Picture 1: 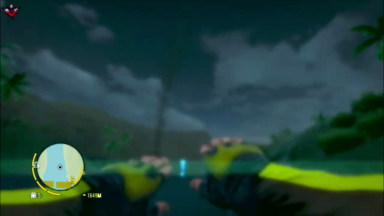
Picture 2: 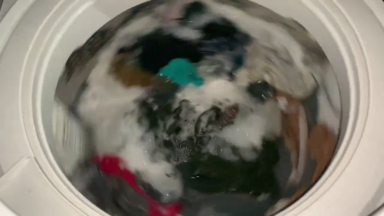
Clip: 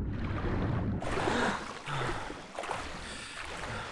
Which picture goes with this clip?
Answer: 1